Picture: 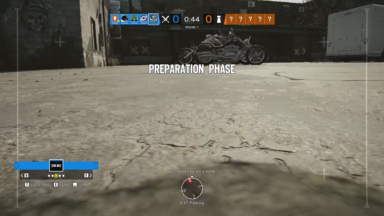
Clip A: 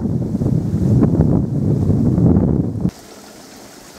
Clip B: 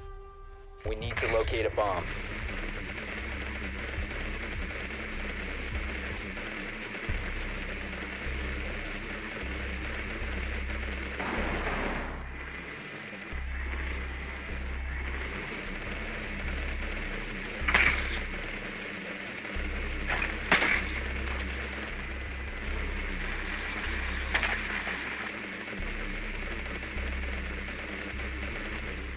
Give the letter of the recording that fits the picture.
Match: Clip B